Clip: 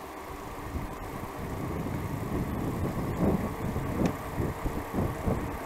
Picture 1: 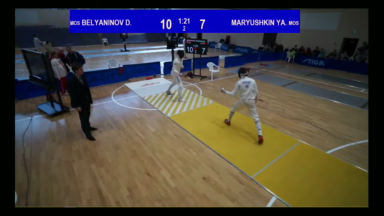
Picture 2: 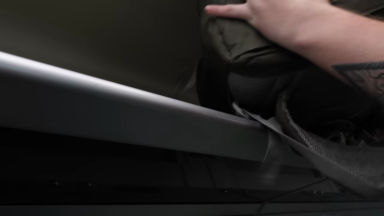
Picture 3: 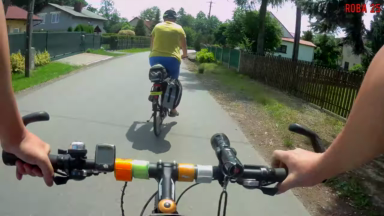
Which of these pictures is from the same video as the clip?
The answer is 3